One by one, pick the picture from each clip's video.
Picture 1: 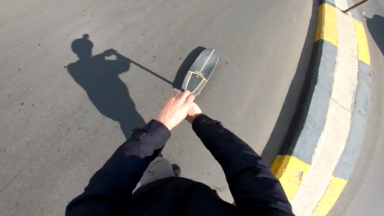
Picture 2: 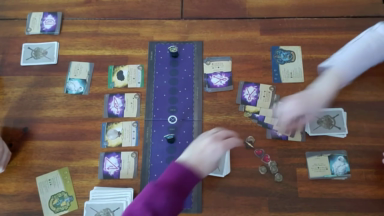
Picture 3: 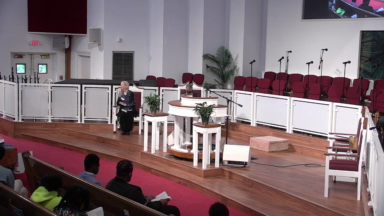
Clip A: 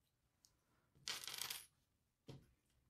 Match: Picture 2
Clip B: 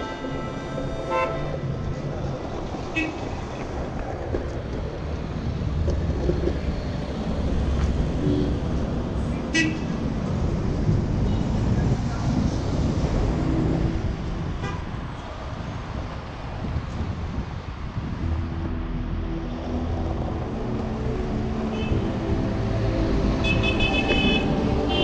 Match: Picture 1